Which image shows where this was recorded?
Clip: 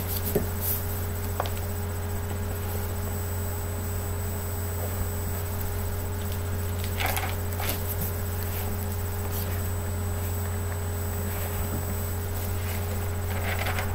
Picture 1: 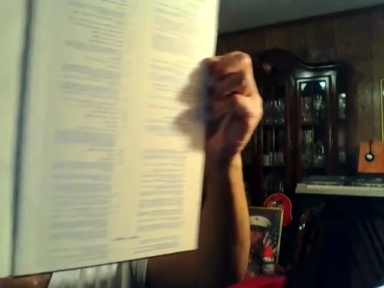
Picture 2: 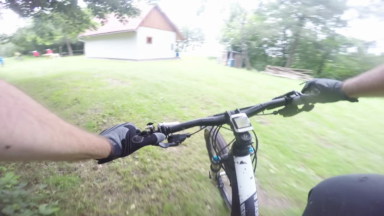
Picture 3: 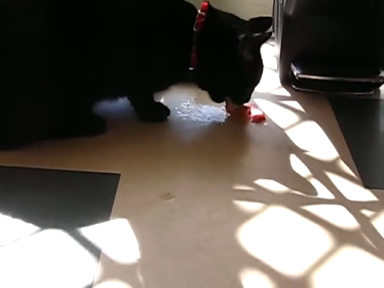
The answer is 1